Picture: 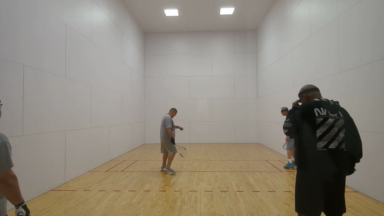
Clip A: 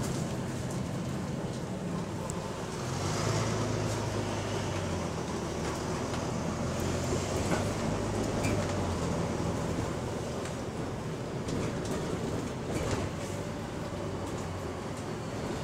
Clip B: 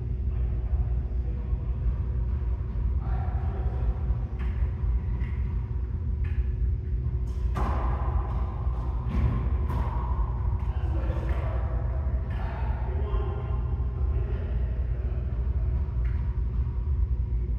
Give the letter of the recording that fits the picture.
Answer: B